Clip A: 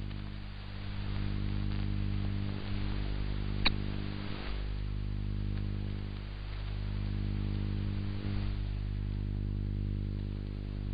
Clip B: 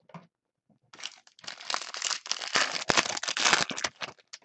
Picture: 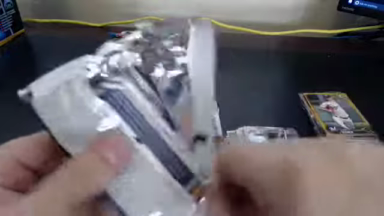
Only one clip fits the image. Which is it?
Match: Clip B